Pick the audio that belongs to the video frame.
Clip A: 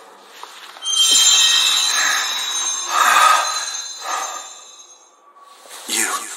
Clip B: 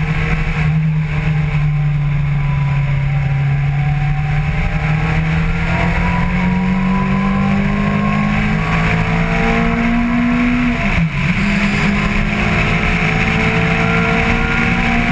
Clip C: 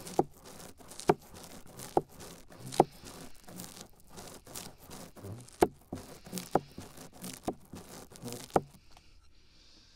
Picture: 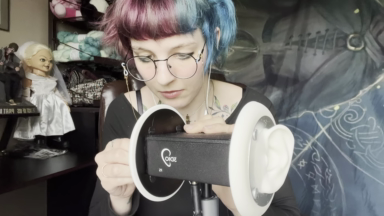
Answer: C